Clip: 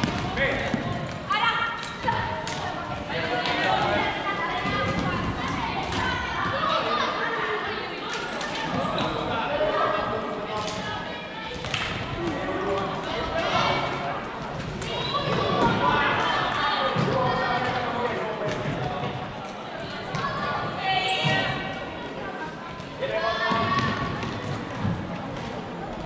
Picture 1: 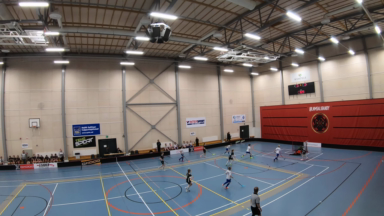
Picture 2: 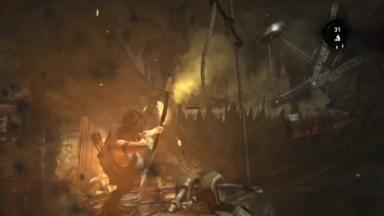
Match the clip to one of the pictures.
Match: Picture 1